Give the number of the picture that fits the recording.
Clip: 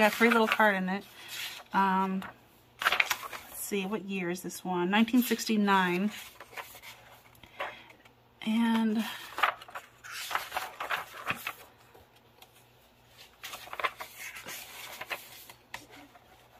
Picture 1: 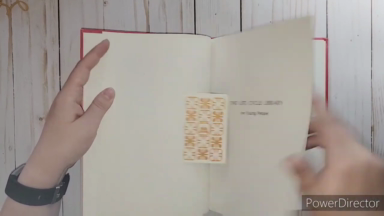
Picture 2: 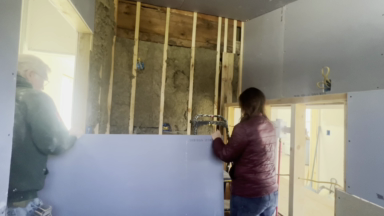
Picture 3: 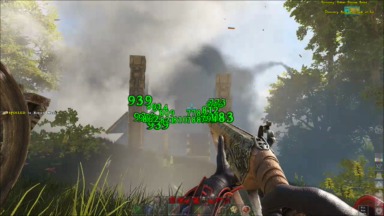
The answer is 1